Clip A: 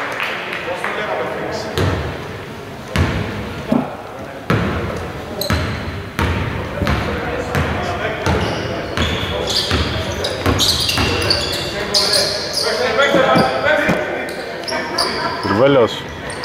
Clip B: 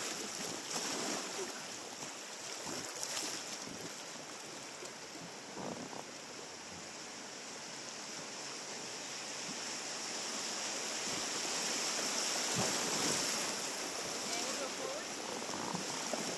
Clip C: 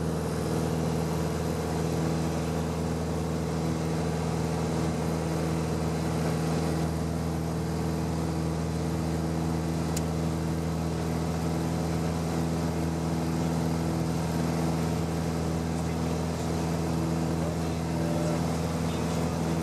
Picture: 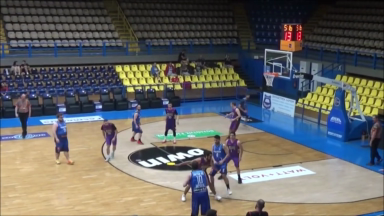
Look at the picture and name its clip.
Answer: A